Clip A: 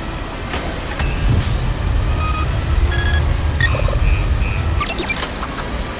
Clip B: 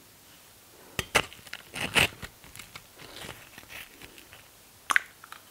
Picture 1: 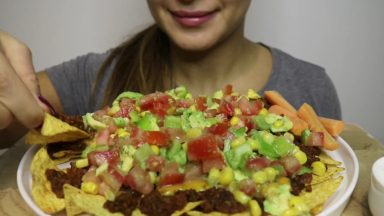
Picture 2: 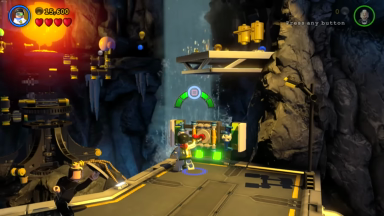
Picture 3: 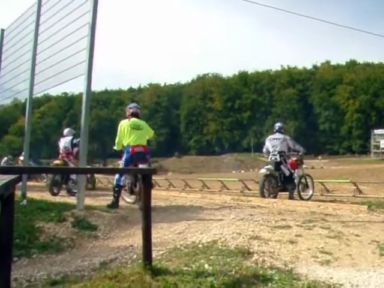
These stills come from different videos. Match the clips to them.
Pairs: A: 2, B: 1